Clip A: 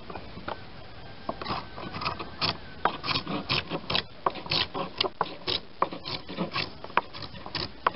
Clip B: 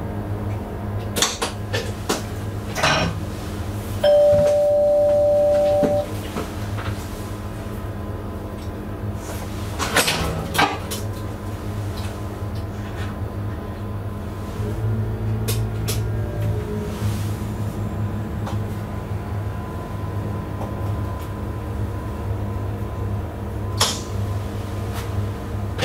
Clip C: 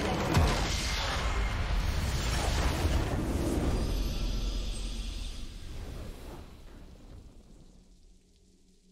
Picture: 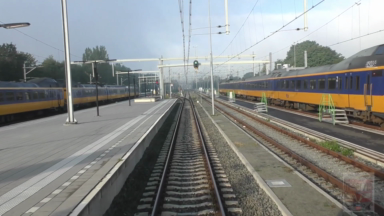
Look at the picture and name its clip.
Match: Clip B